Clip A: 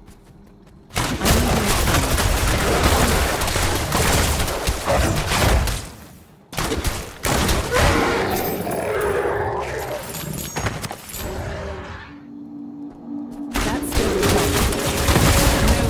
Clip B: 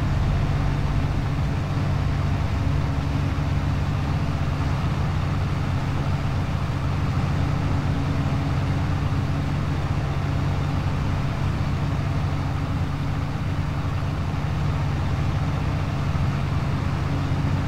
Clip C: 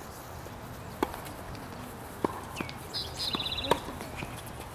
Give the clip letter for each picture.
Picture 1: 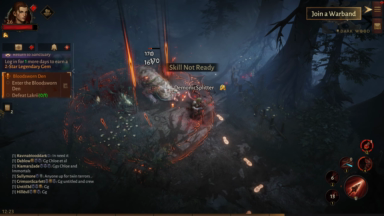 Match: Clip A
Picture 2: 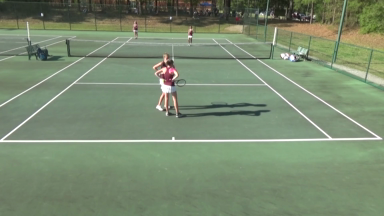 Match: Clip C